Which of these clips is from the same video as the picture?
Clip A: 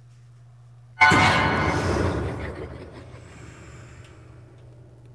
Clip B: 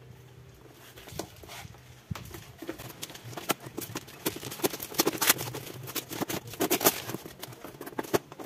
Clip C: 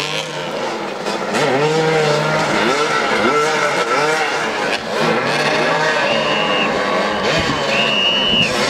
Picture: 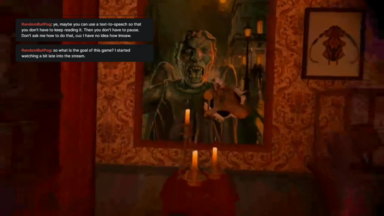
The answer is A